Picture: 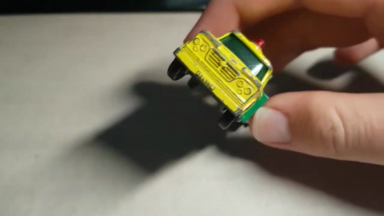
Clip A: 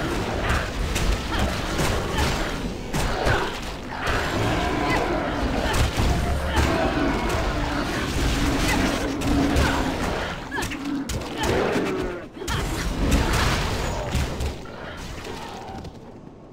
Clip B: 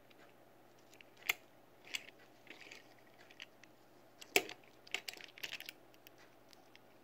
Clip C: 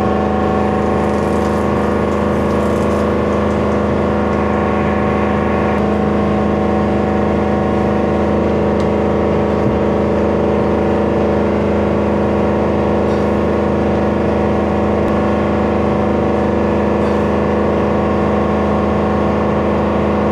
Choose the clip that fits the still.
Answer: B